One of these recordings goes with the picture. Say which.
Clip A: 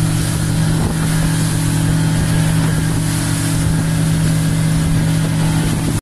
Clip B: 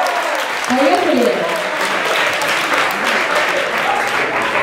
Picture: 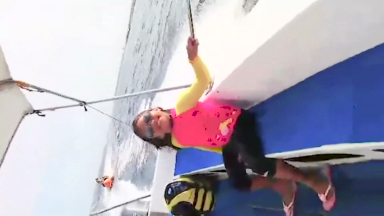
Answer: A